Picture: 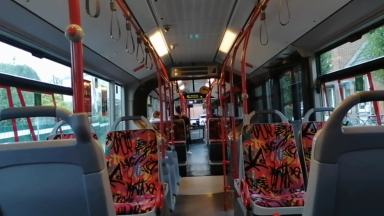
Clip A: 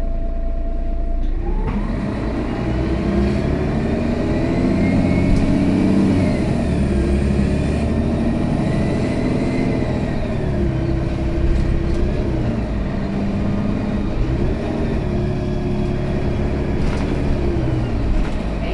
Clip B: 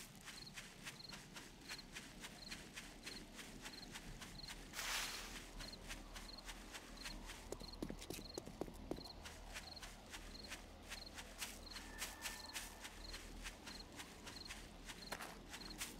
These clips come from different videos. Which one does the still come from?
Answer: A